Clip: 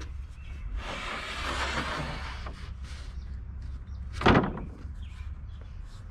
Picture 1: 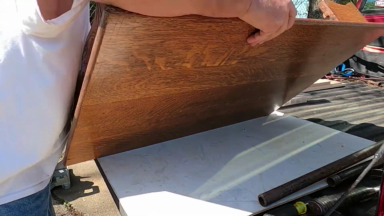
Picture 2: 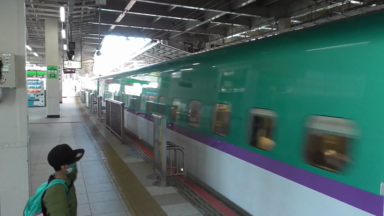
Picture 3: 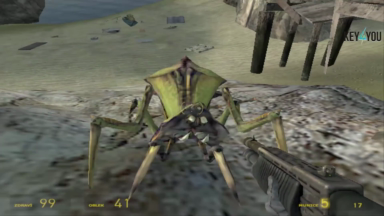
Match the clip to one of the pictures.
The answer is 1